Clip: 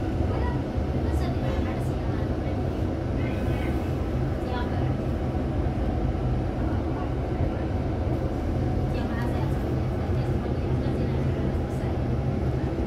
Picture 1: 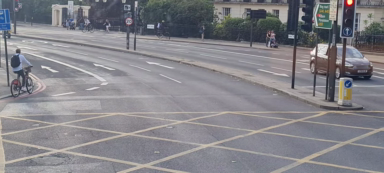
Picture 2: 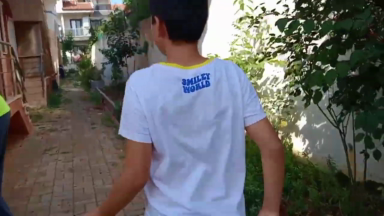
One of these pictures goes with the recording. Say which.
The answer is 1